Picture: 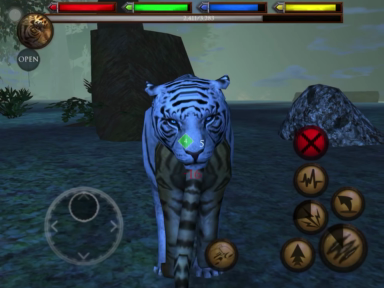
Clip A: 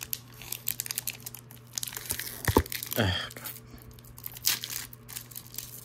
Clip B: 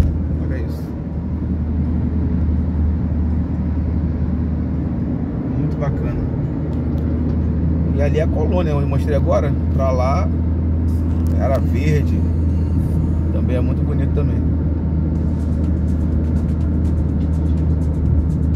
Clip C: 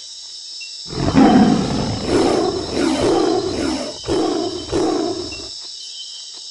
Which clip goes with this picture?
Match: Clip C